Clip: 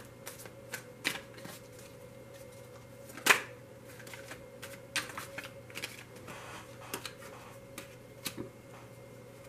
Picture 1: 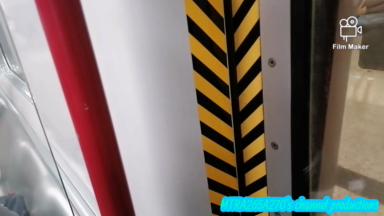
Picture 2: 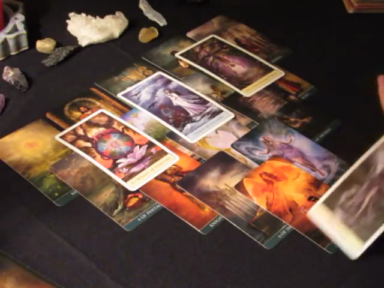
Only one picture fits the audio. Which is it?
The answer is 2